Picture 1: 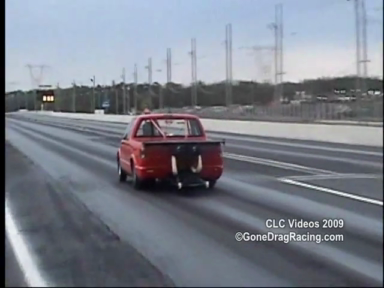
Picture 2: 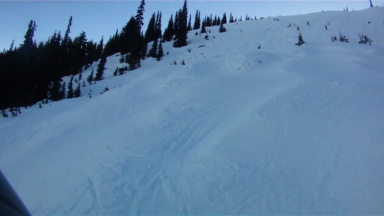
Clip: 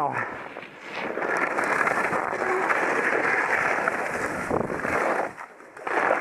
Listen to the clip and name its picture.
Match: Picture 2